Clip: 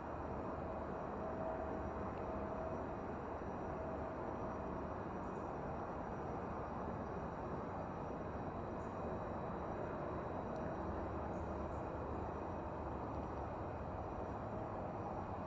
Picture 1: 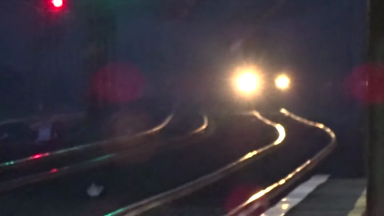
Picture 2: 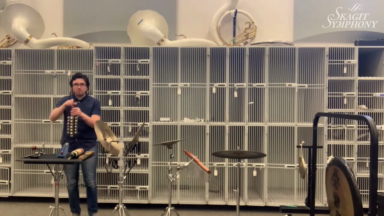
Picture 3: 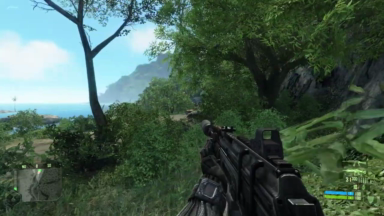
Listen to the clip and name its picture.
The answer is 1